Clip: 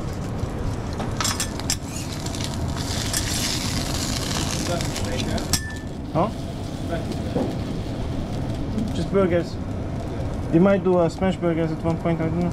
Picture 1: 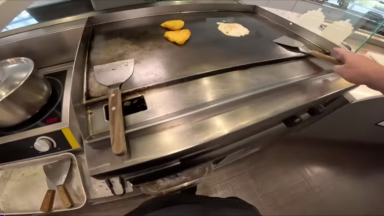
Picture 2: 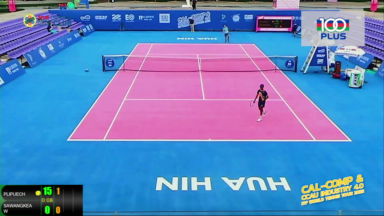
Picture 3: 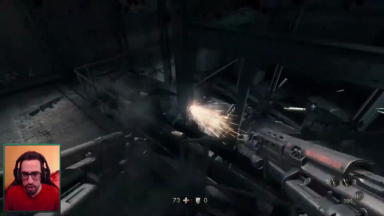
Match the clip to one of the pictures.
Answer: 1